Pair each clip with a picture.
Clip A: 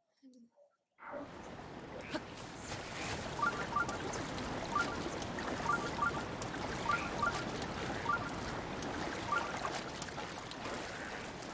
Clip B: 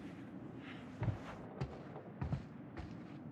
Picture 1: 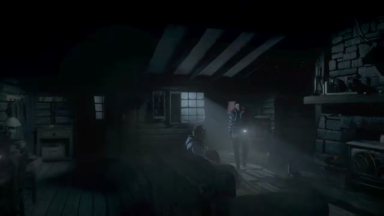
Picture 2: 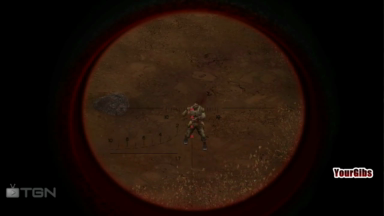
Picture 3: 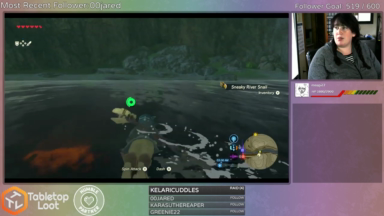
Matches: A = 3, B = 1